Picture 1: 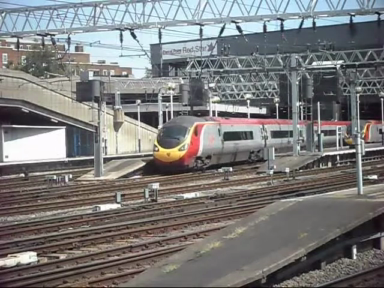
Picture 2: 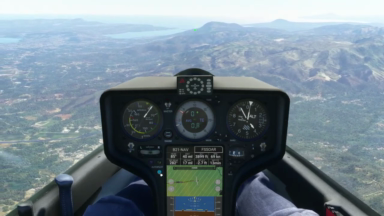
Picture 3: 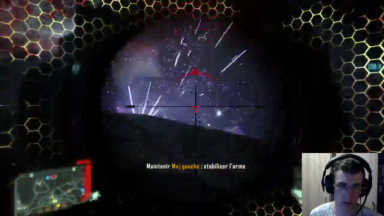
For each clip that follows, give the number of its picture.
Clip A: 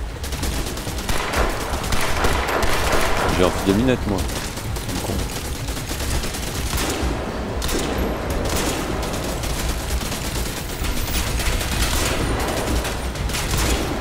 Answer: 3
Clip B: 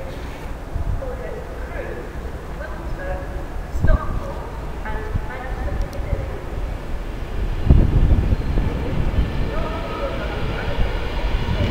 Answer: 1